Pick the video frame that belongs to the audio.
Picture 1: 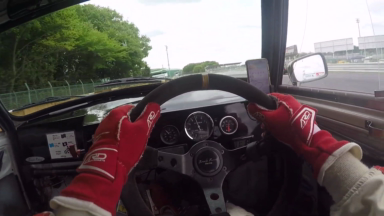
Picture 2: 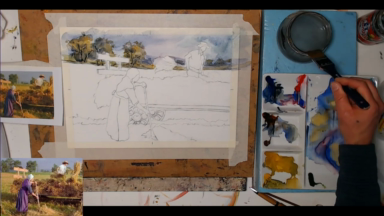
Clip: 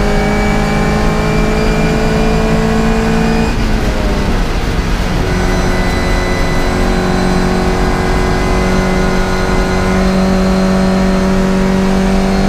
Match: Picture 1